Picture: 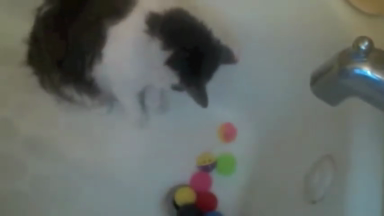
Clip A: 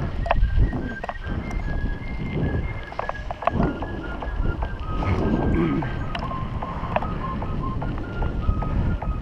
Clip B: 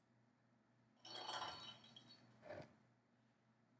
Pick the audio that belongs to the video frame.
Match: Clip B